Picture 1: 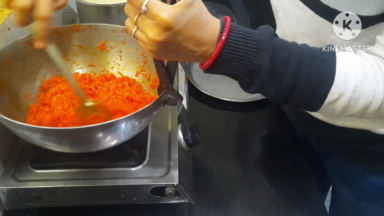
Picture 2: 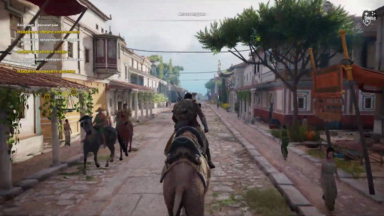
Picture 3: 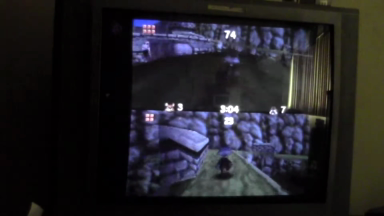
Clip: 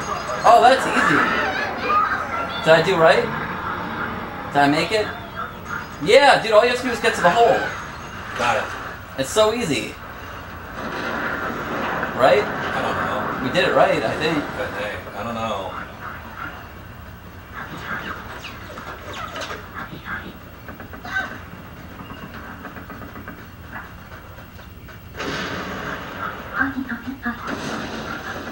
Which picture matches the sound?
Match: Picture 3